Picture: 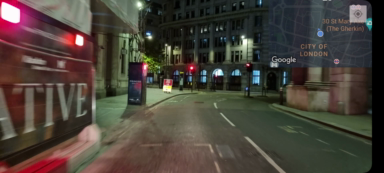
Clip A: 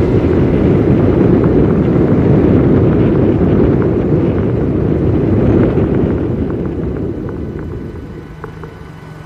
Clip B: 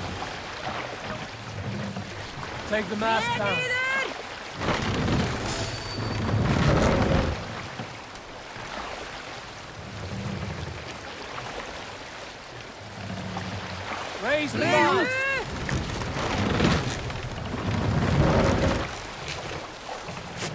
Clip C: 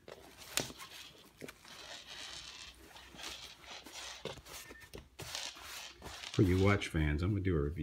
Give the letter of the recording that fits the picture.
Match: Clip A